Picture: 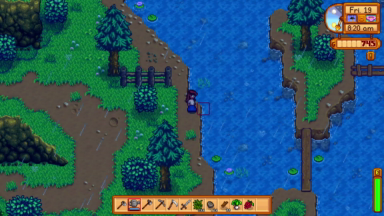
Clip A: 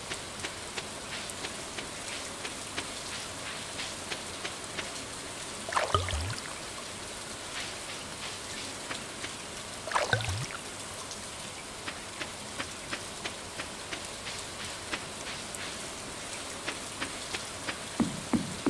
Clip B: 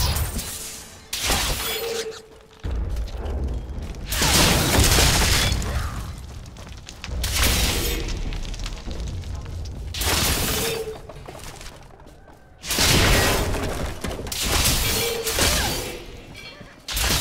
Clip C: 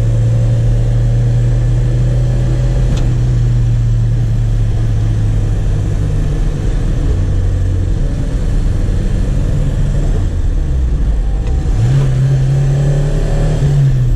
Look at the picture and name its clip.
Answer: A